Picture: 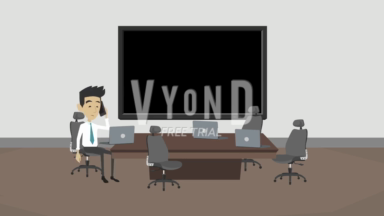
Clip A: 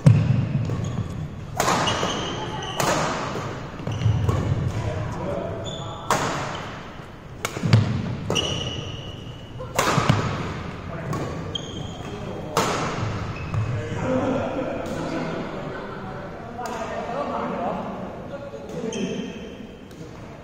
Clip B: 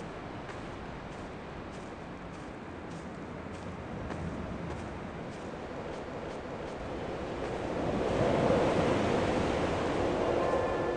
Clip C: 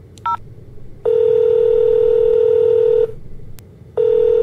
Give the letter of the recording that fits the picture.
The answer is C